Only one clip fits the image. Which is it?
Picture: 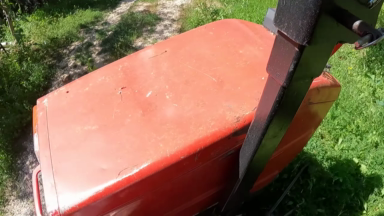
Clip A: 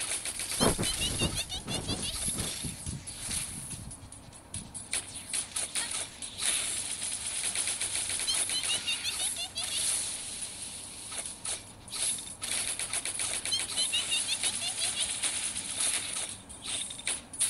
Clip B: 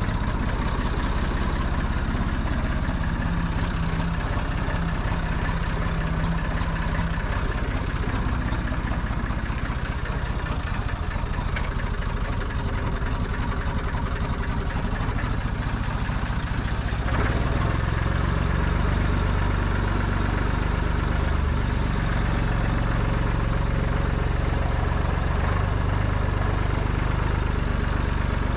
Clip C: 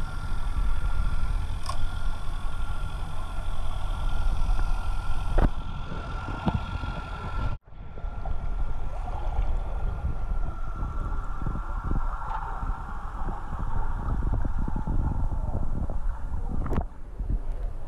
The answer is B